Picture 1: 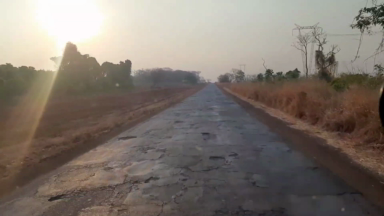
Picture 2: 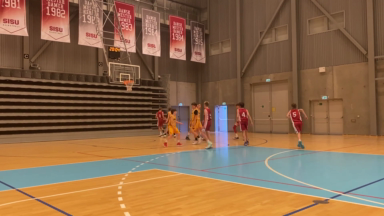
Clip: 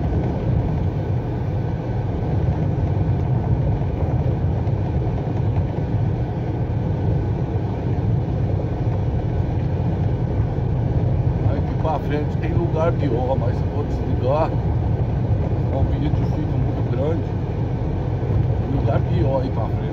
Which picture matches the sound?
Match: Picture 1